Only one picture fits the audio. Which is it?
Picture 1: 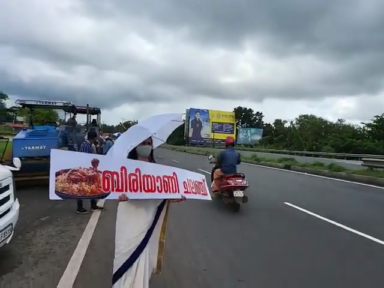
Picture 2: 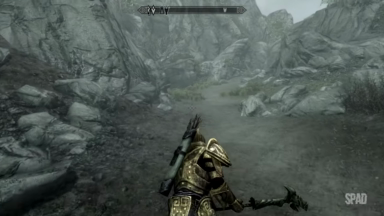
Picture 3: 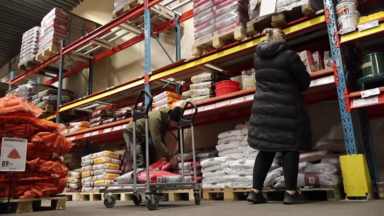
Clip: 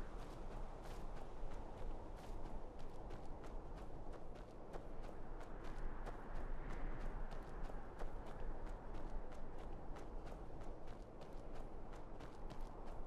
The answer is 2